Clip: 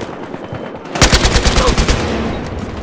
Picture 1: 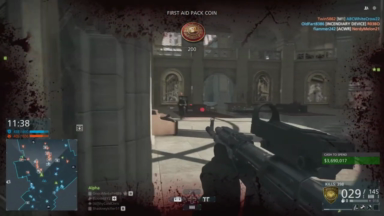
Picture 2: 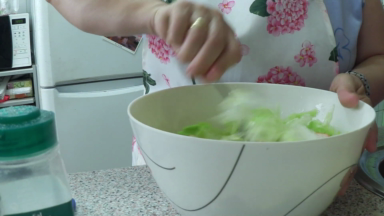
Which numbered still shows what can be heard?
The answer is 1